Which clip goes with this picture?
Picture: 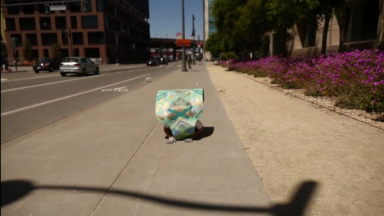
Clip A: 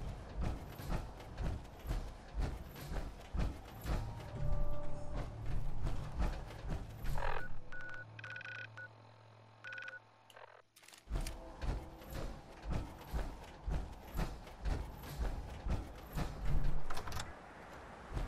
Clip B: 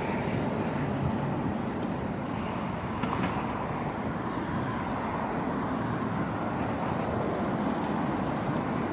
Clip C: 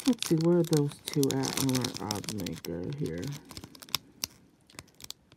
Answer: B